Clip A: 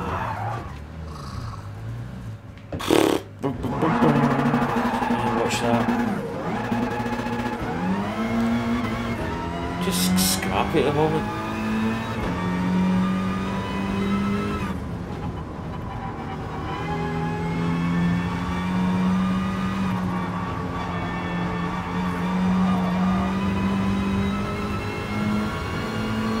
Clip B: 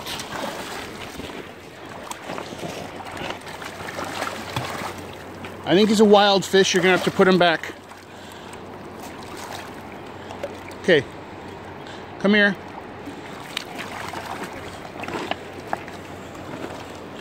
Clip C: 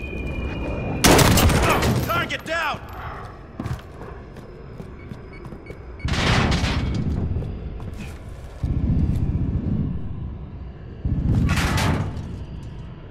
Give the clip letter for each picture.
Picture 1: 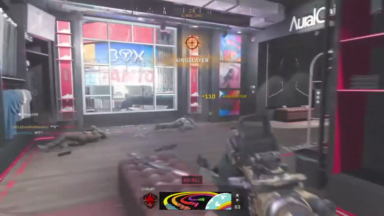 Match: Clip C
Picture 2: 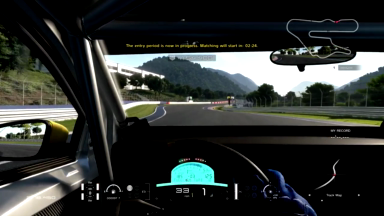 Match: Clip A